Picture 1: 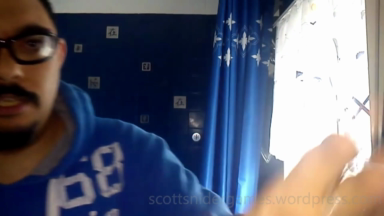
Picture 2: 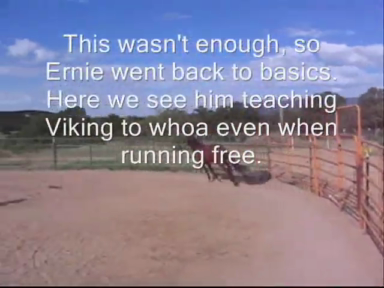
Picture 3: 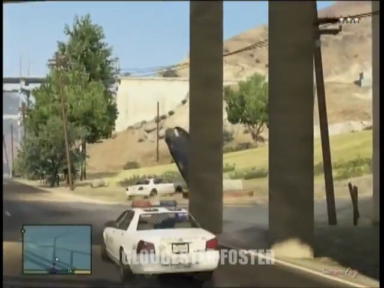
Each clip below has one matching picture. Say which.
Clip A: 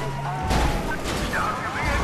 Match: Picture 3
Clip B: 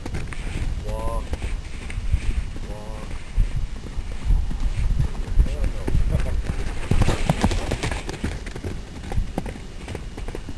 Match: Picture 2